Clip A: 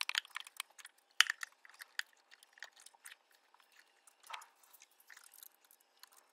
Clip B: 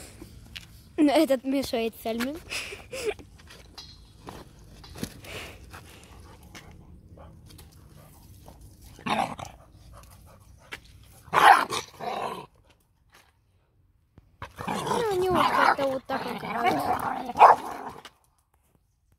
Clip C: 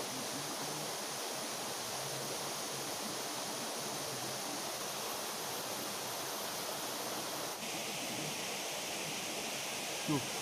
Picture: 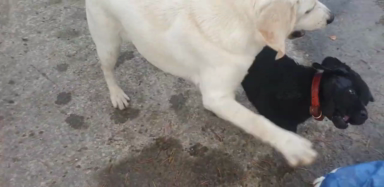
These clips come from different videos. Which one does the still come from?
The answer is B